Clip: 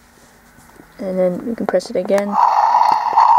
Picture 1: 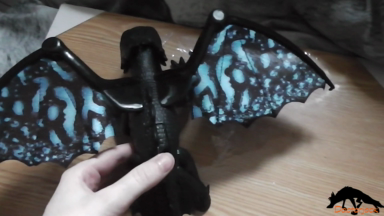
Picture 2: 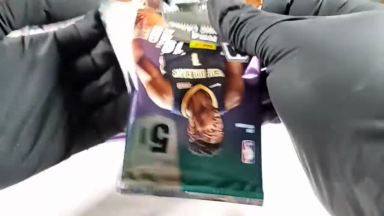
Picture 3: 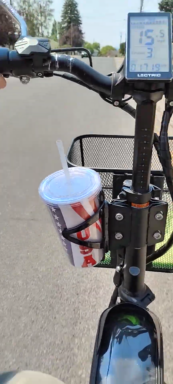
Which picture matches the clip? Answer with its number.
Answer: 1